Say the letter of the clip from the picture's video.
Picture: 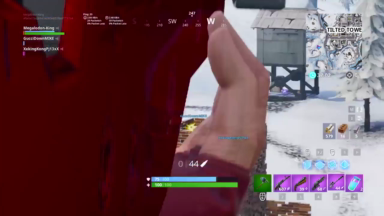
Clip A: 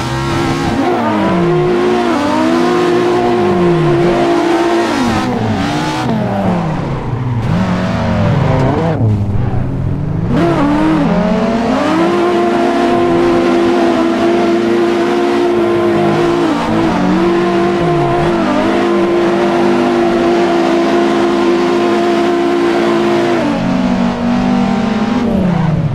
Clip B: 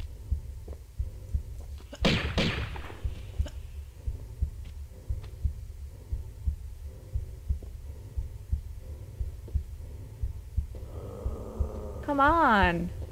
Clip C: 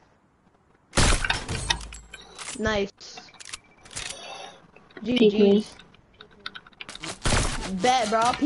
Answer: C